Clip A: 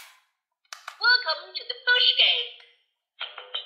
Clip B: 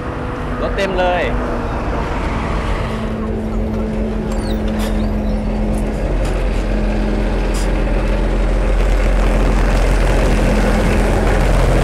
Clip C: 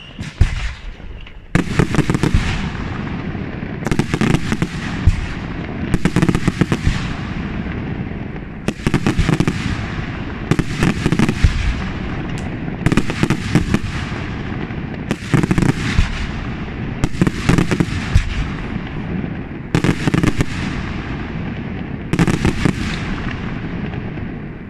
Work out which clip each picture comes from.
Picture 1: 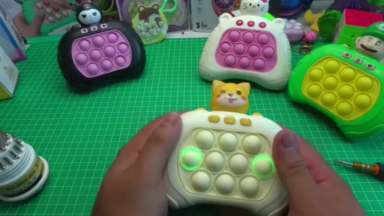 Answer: A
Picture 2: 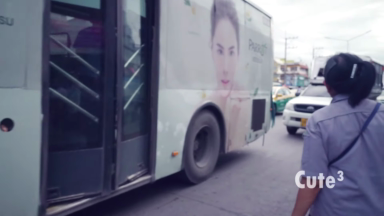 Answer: B